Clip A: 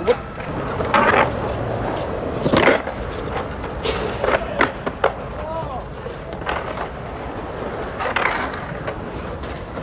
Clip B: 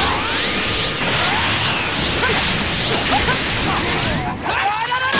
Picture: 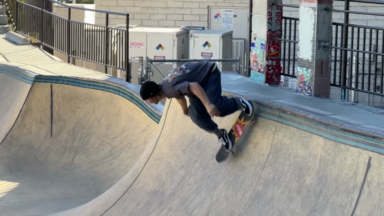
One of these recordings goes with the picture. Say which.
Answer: A